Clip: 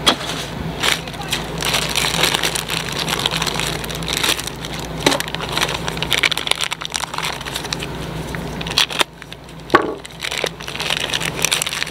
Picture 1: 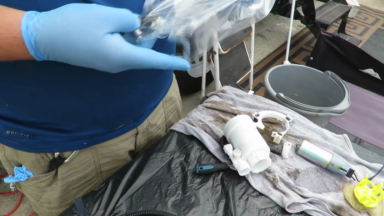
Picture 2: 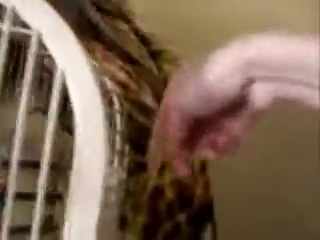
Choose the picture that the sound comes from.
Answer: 1